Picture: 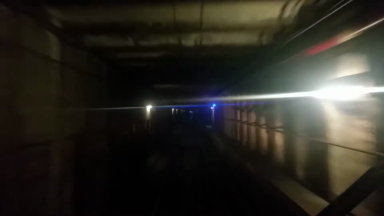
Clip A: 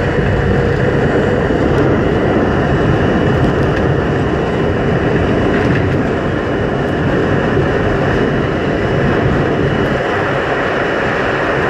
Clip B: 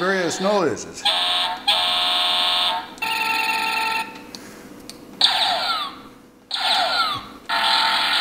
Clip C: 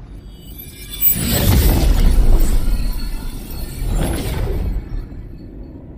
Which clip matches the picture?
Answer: A